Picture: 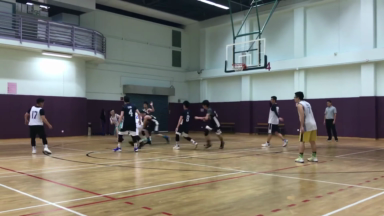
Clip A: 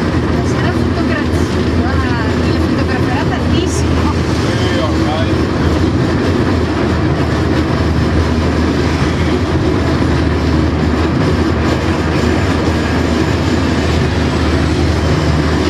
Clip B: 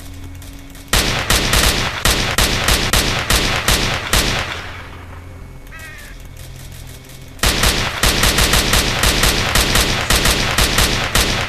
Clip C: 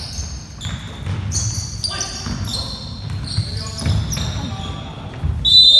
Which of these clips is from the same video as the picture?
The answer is C